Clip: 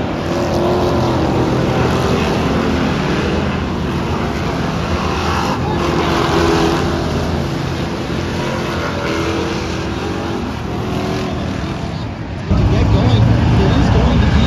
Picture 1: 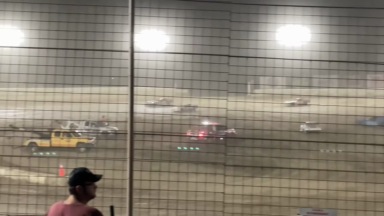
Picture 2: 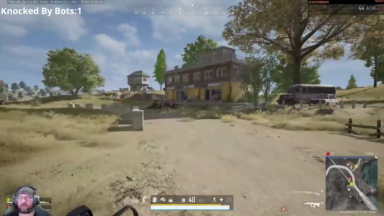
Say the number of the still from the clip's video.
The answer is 1